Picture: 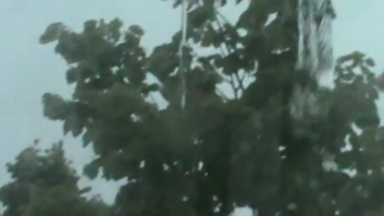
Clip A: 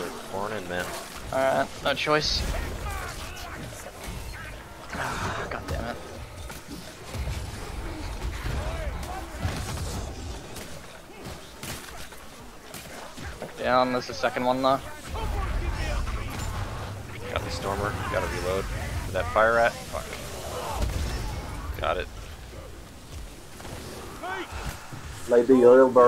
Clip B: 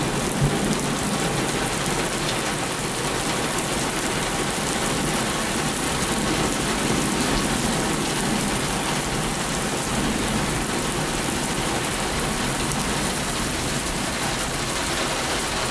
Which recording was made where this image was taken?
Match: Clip B